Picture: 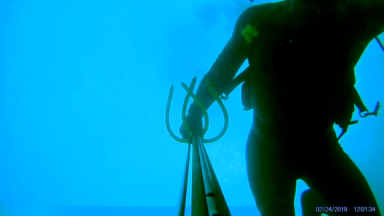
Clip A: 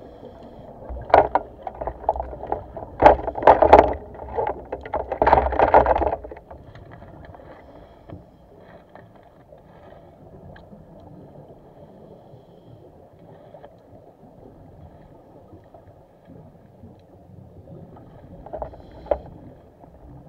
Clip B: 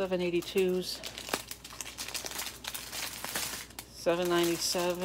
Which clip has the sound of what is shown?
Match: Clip A